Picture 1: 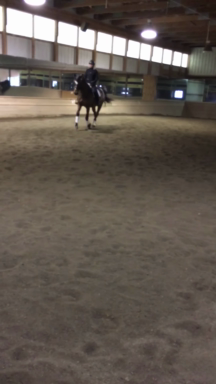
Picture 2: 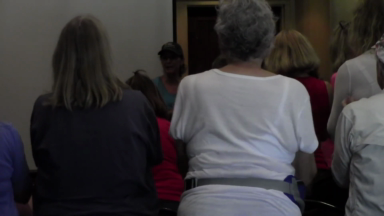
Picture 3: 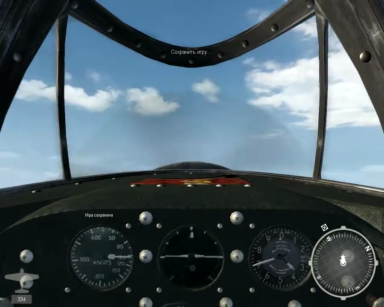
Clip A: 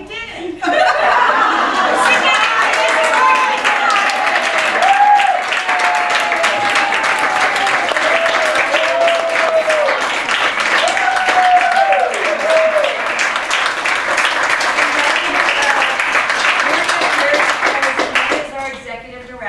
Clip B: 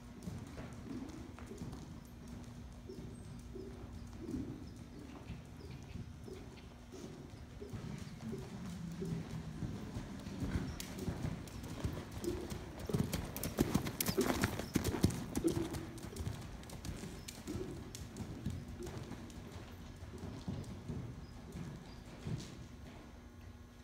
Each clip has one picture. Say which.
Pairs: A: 2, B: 1